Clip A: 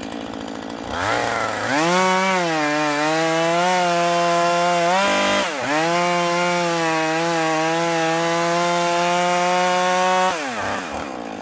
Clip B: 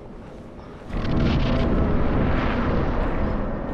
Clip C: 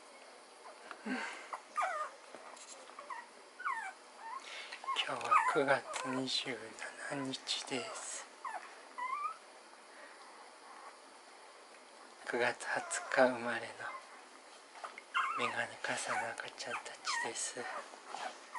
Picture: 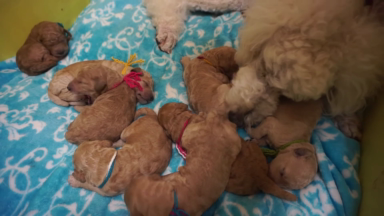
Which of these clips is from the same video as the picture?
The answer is C